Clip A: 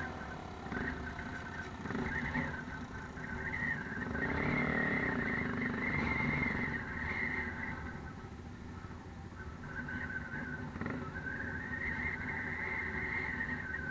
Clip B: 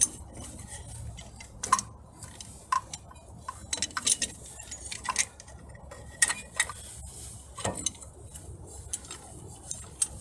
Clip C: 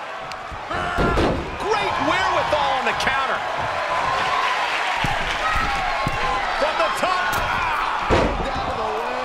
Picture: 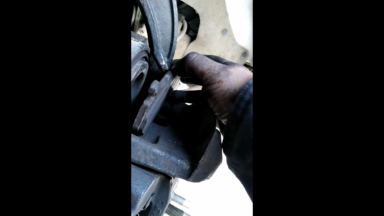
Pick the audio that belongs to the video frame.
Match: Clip B